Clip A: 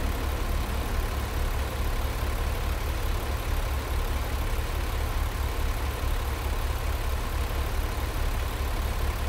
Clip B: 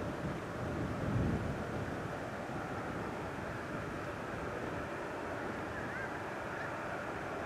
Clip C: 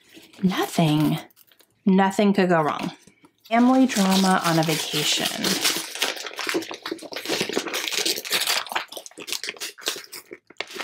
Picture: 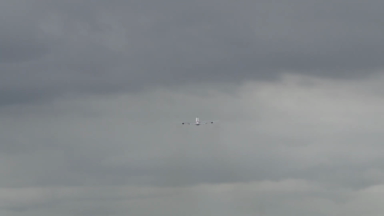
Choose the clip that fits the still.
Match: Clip B